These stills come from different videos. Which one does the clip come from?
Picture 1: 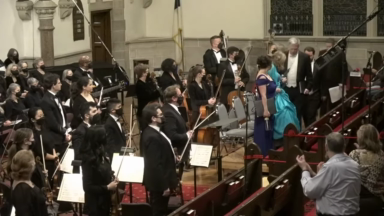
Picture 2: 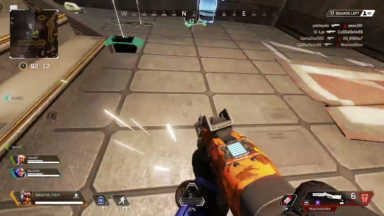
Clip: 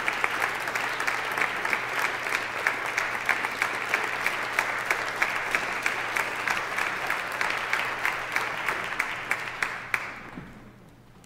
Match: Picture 1